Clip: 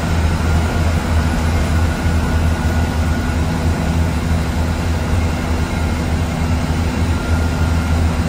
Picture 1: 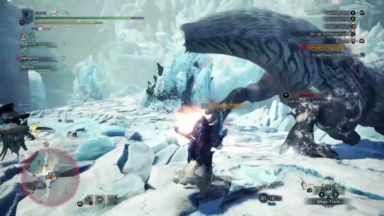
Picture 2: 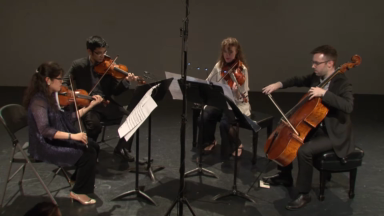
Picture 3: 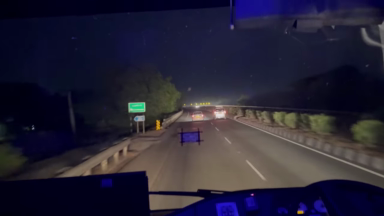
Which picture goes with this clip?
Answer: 3